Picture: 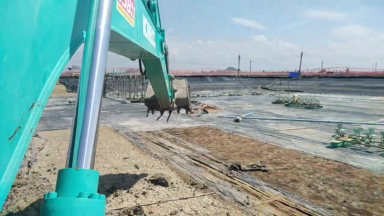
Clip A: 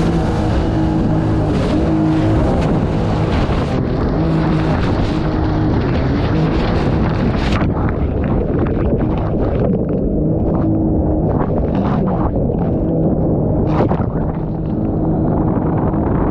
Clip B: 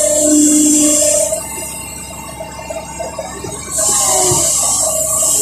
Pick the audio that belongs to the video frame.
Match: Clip B